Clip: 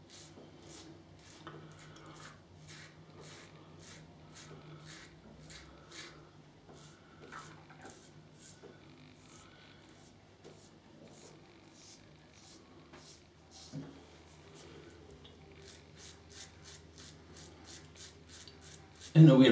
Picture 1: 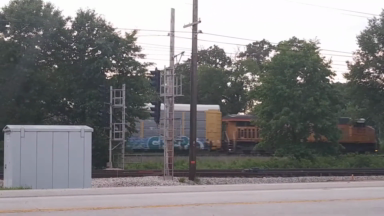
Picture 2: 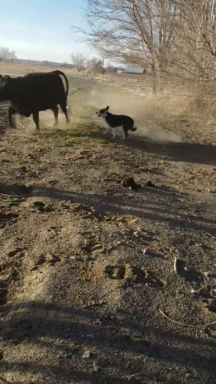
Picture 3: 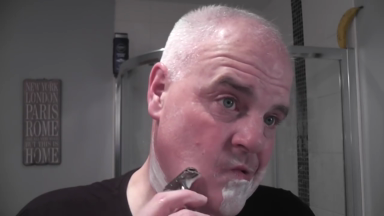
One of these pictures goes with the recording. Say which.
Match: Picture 3